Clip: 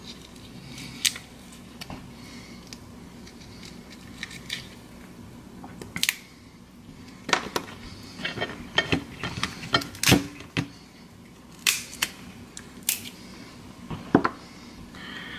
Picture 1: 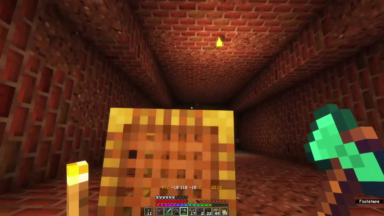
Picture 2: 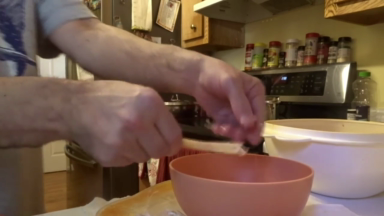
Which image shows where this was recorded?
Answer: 2